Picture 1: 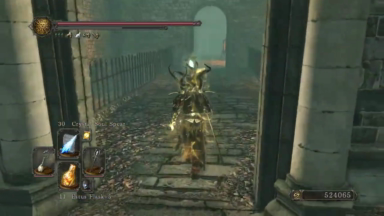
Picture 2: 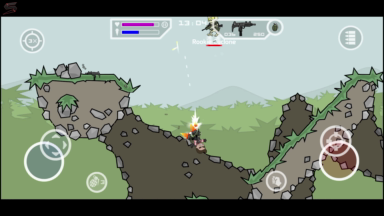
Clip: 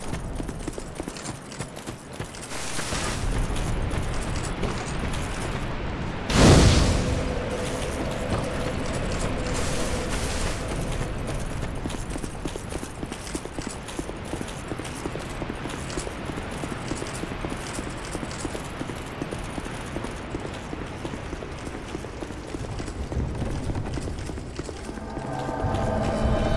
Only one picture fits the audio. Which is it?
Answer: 1